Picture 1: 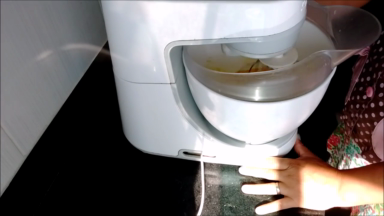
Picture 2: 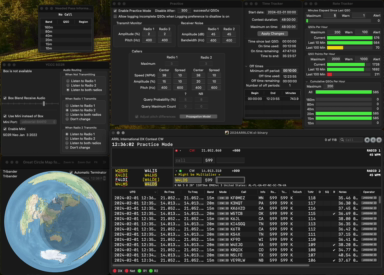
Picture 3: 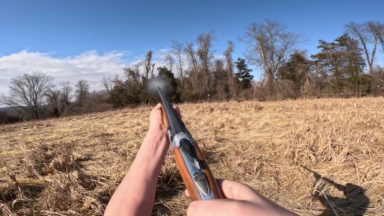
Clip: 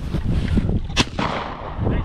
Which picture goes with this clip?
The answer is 3